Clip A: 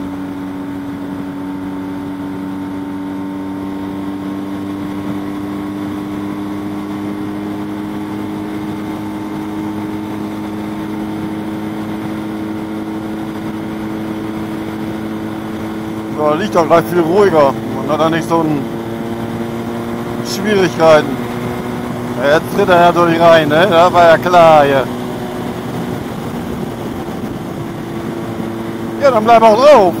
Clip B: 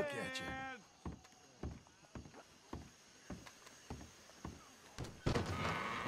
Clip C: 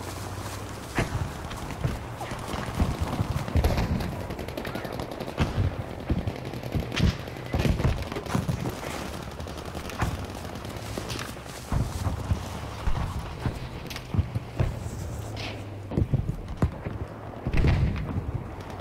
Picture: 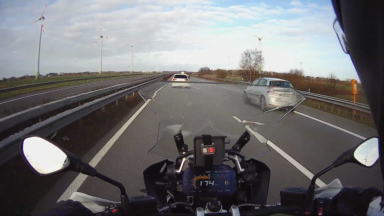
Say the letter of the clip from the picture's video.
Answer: A